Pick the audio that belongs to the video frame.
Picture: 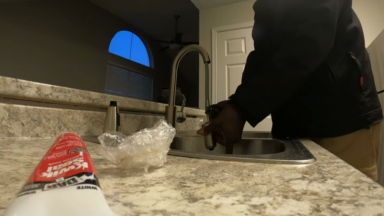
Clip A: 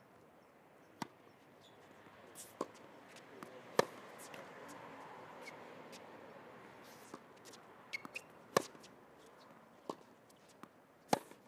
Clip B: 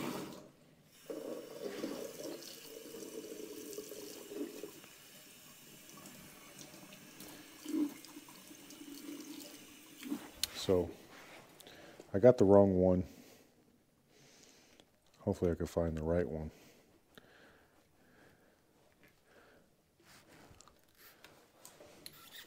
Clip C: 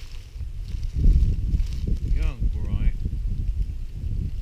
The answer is B